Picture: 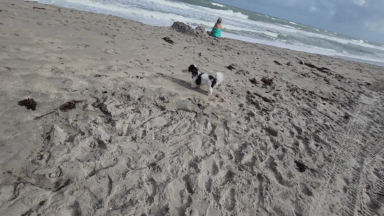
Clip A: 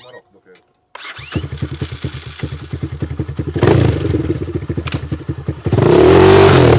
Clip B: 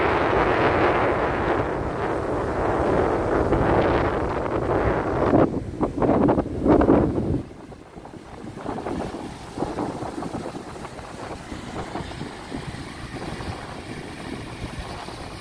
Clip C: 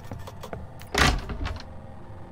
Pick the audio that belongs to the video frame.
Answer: B